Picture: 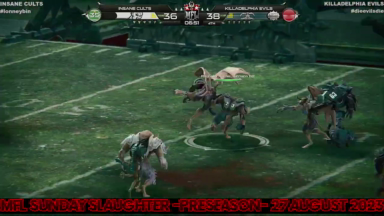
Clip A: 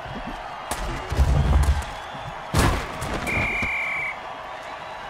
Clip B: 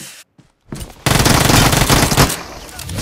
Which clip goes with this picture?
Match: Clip A